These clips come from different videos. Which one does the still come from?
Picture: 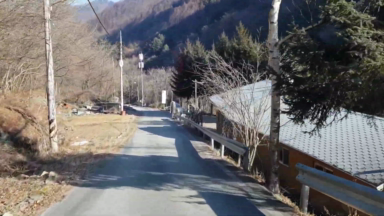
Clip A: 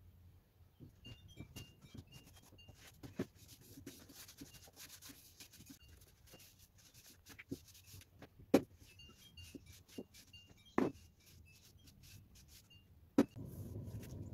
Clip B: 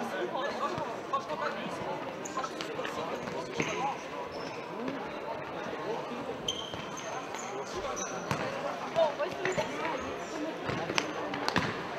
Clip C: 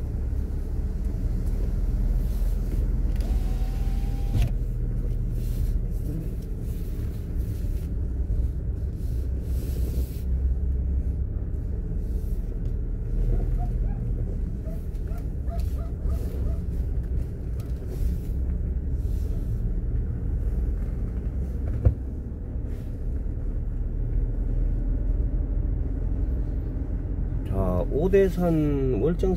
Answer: C